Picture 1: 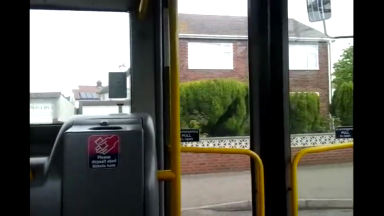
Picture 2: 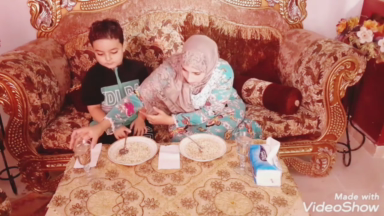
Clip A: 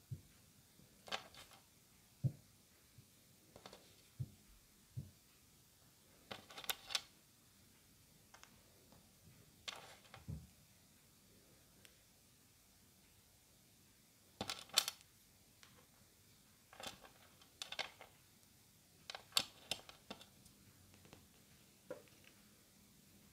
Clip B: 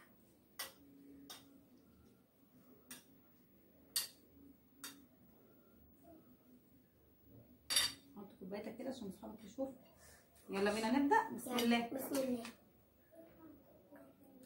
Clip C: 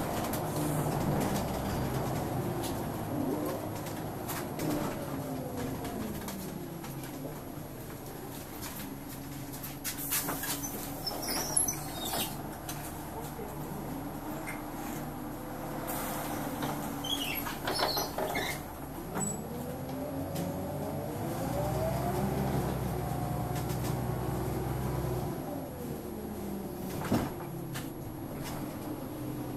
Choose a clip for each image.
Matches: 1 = C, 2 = B